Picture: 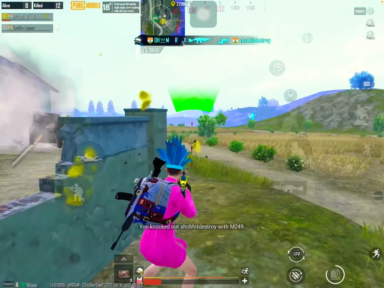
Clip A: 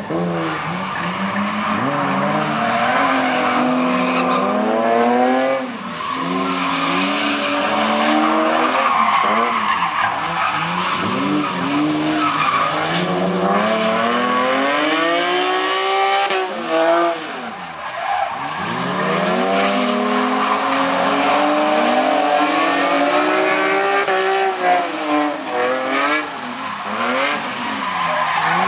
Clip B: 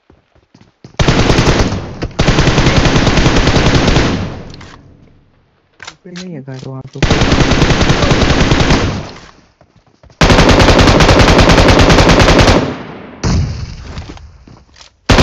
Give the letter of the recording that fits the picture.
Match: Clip B